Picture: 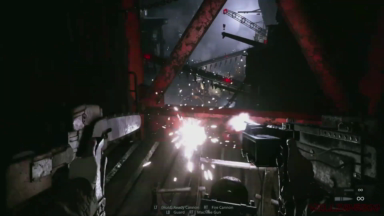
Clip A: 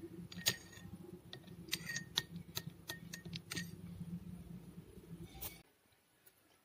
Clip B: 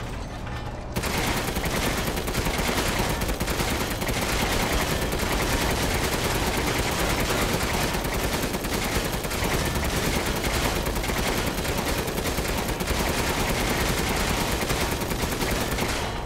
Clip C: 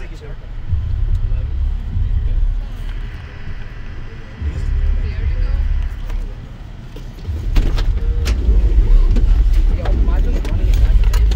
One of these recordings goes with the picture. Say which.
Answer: B